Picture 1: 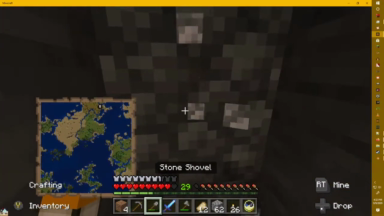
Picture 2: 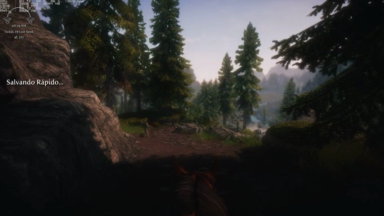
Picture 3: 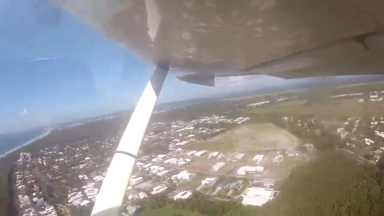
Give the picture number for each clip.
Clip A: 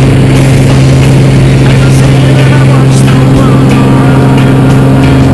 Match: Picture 3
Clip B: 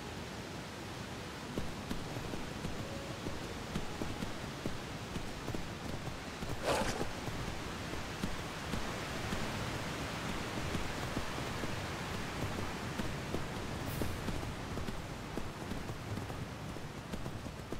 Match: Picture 2